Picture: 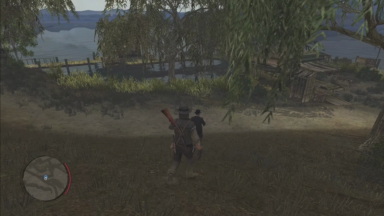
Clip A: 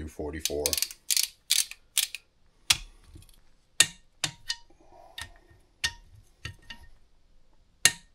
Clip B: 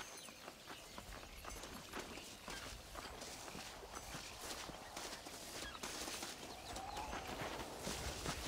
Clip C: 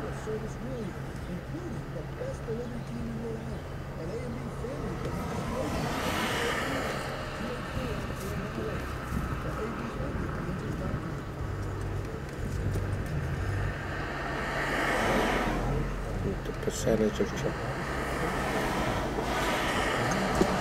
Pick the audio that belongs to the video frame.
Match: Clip B